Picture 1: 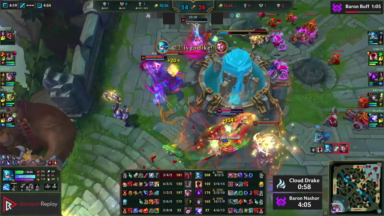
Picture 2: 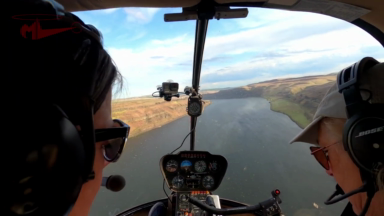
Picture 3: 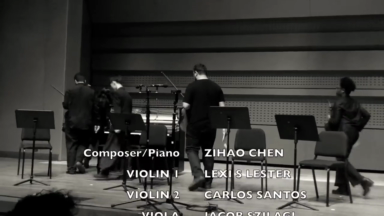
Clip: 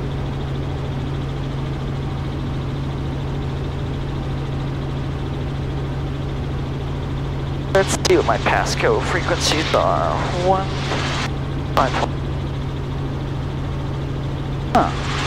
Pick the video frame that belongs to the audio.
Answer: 2